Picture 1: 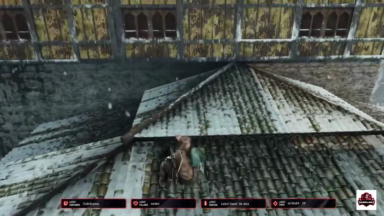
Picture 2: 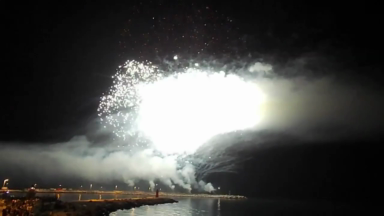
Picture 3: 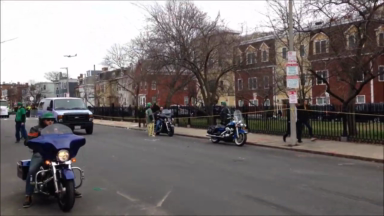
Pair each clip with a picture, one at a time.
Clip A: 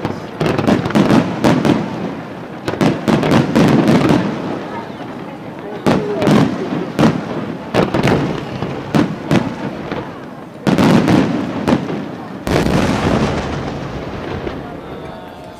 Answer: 2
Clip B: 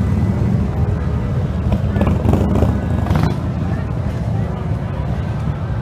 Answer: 3